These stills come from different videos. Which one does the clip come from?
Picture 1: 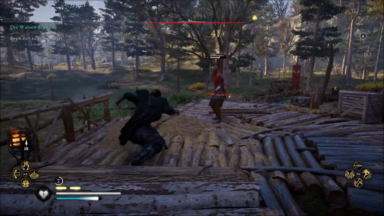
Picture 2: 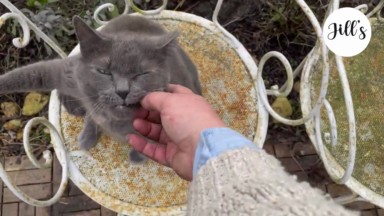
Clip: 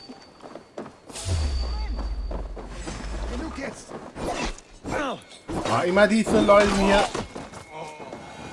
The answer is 1